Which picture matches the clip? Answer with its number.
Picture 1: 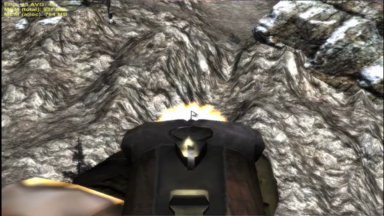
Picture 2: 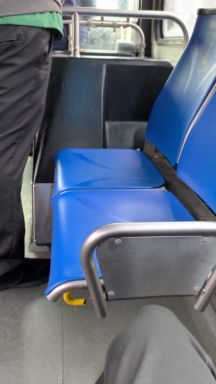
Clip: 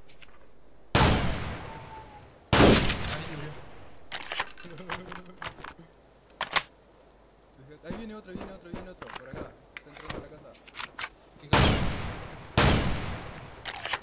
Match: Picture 1